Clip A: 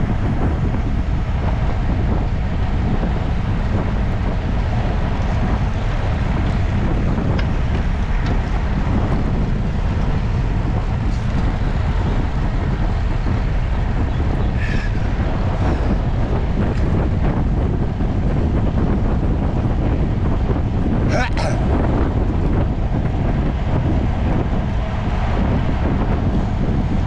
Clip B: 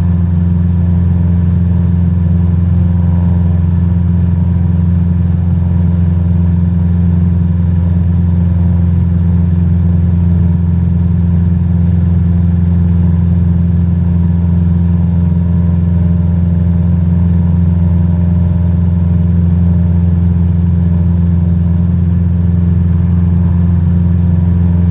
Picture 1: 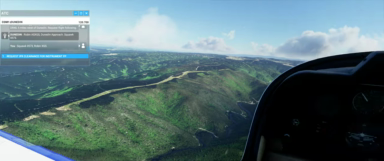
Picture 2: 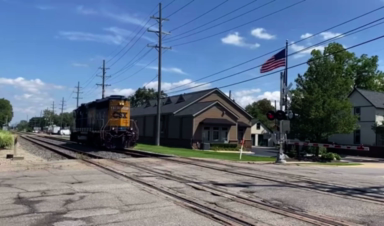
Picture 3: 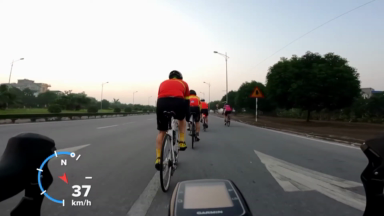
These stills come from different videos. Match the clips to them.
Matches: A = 3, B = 1